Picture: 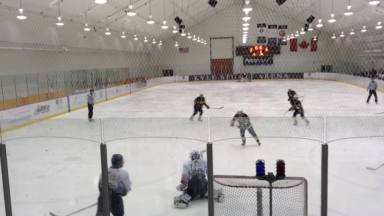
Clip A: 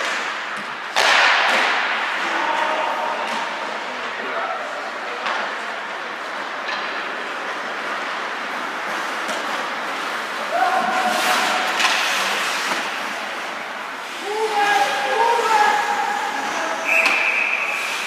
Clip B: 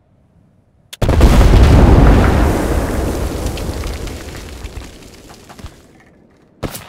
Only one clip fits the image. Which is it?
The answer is A